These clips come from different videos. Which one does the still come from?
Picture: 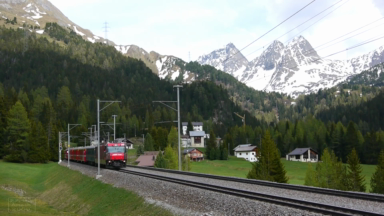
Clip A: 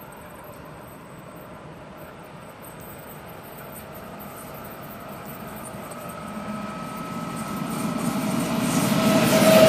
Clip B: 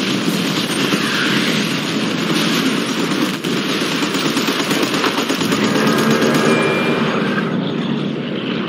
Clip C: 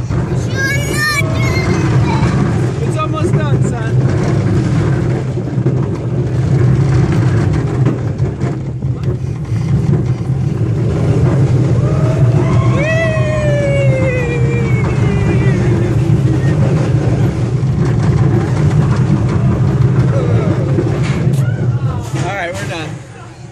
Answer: A